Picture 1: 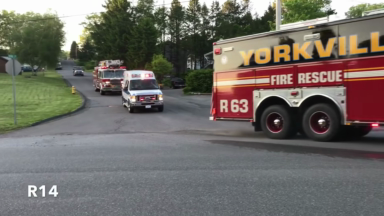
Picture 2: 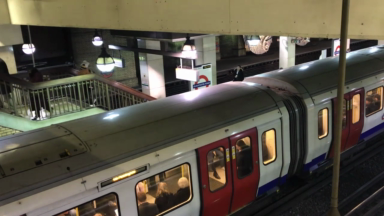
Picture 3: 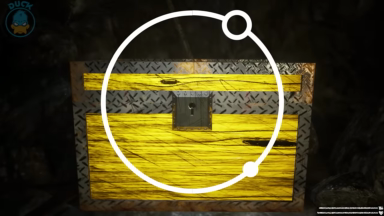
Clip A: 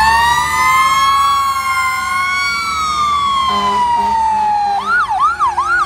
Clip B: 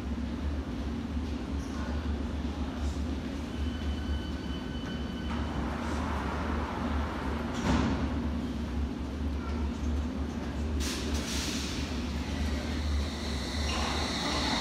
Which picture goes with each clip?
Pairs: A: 1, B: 2